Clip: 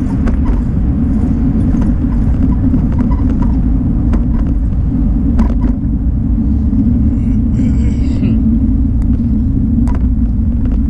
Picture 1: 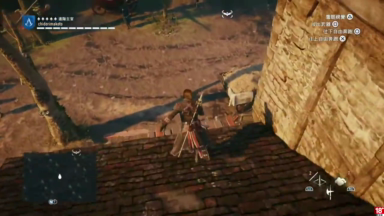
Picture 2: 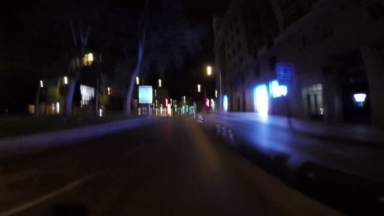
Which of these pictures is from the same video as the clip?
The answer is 2